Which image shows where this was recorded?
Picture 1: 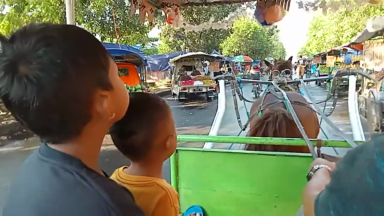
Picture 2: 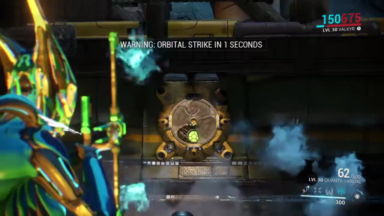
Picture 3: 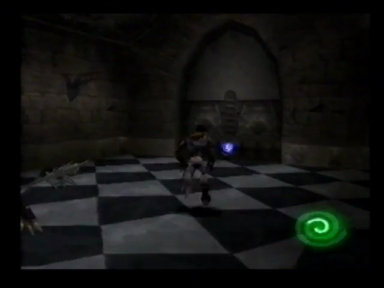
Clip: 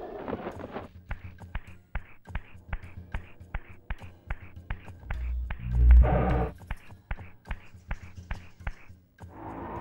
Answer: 3